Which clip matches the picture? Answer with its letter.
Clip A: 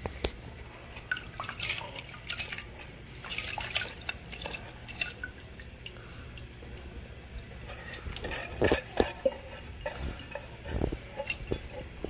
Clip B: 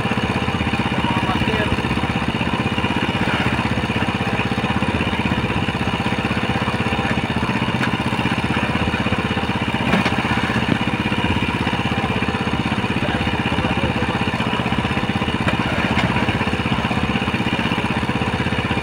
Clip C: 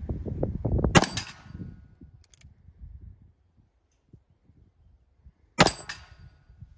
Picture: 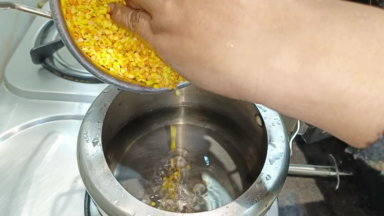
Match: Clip A